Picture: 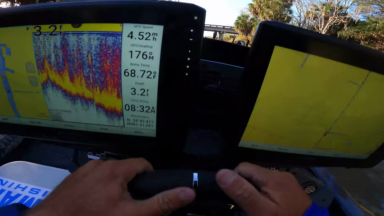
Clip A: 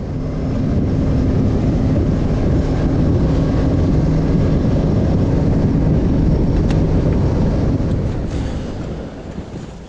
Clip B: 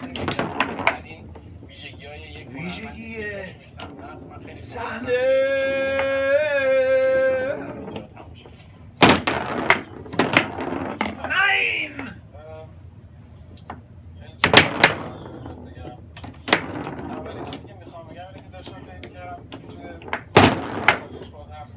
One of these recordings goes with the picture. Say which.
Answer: A